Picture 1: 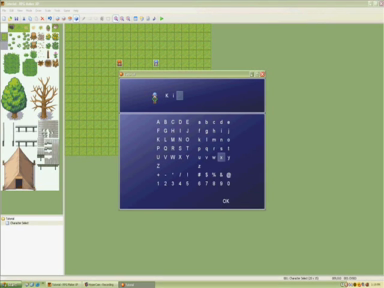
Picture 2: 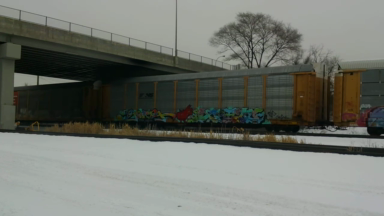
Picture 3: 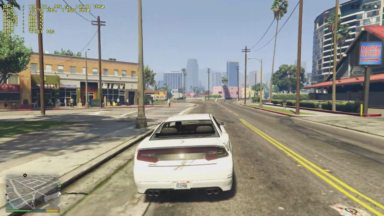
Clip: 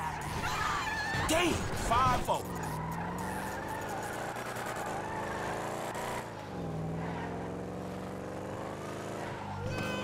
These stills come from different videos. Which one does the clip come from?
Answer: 3